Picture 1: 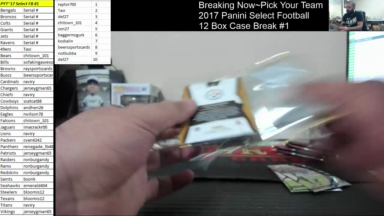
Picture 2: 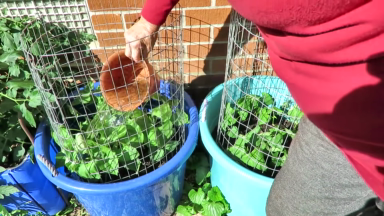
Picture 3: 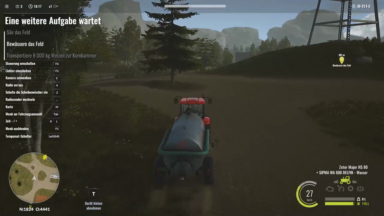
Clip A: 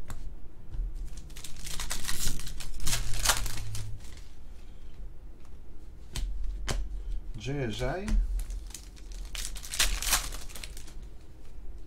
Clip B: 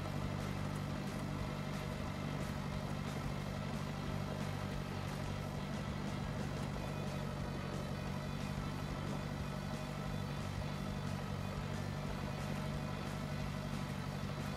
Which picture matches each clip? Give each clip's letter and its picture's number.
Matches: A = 1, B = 3